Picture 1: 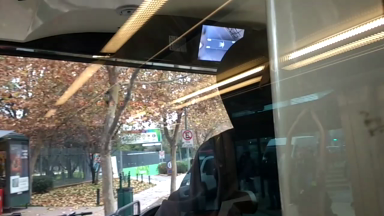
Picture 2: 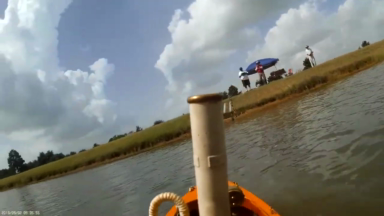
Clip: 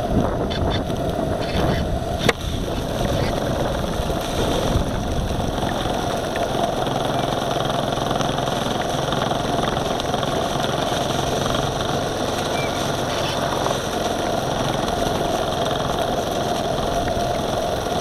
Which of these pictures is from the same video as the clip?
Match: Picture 2